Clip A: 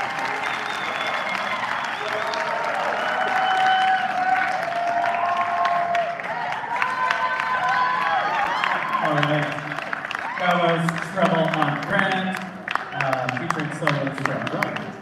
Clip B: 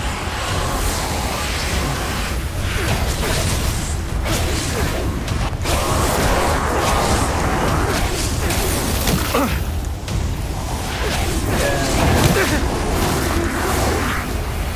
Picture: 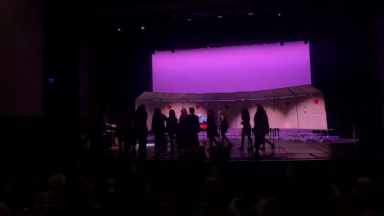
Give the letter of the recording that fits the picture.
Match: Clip A